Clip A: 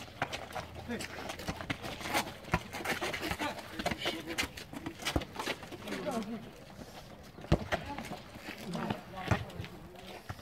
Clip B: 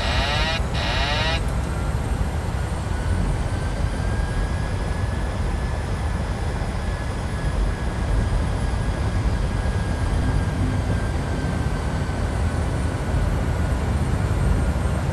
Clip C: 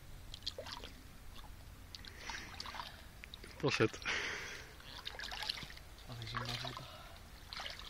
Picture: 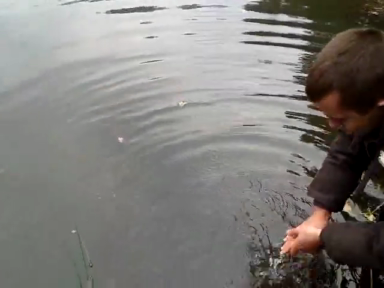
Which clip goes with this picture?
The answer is C